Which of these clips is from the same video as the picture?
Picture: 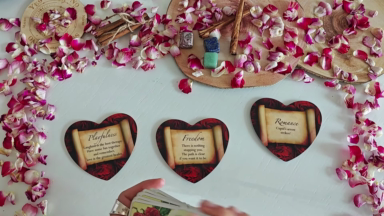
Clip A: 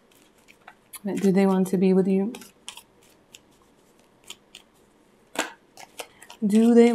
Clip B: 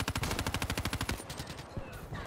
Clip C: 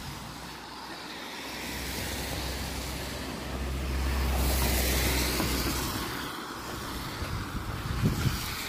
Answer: A